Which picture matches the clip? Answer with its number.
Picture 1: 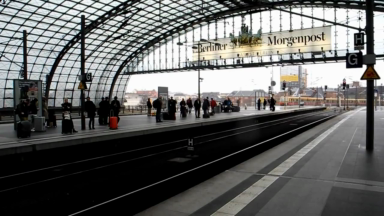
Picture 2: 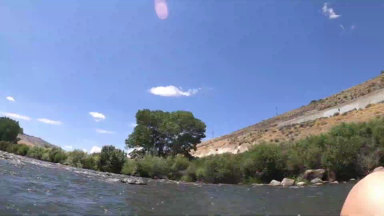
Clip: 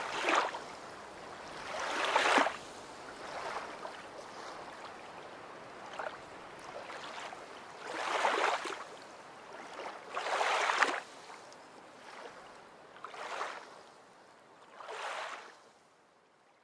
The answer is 2